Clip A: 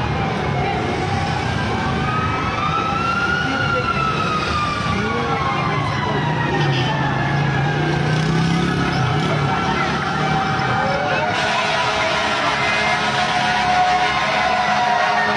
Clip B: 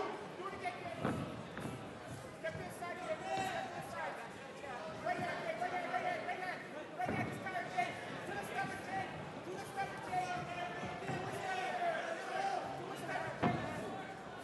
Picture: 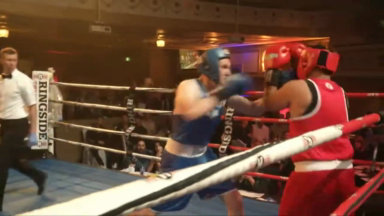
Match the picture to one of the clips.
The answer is B